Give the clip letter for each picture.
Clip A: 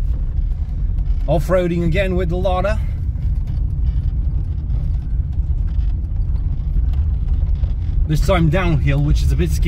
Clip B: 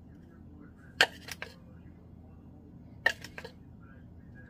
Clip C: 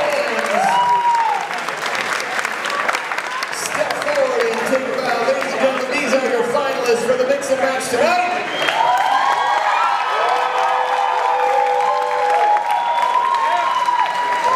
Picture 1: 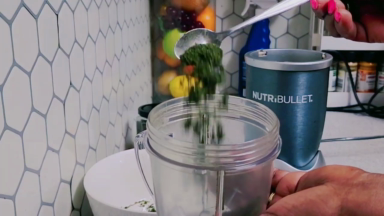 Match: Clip B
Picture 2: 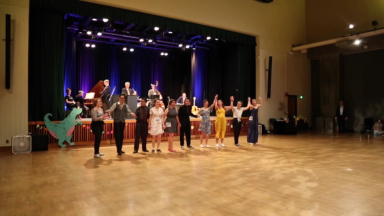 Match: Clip C